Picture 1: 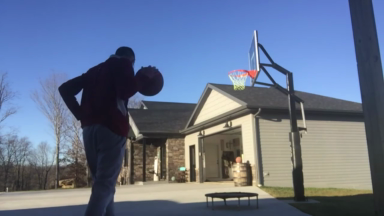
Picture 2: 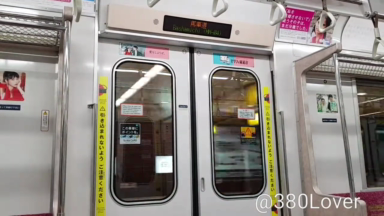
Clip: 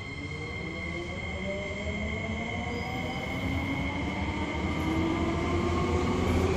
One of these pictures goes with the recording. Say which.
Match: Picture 2